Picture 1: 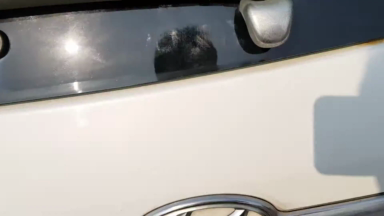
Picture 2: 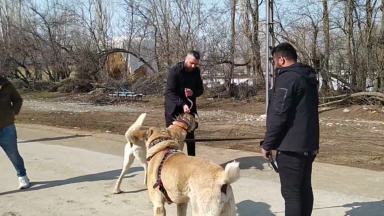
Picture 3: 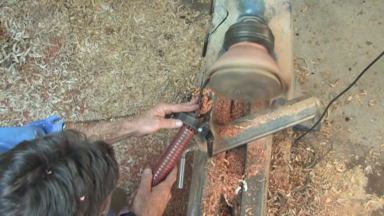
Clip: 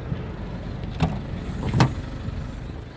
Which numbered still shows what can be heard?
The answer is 1